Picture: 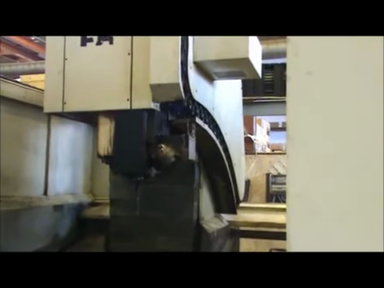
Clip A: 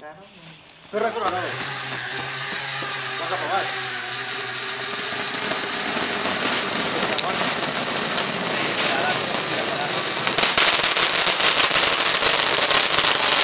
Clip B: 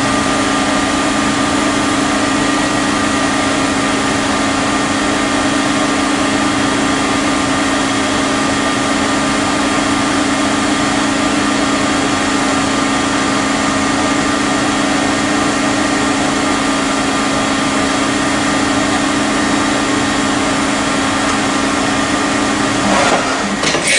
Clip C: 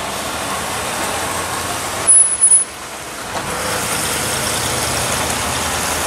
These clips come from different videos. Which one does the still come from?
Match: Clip B